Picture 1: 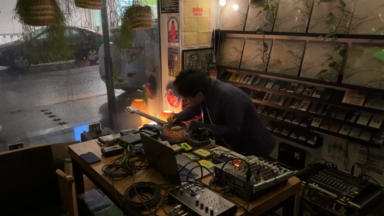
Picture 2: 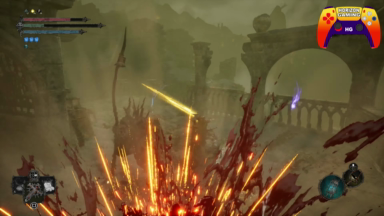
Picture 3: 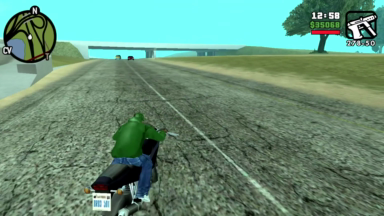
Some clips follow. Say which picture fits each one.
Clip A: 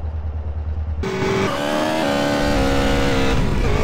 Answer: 3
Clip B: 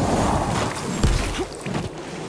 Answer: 2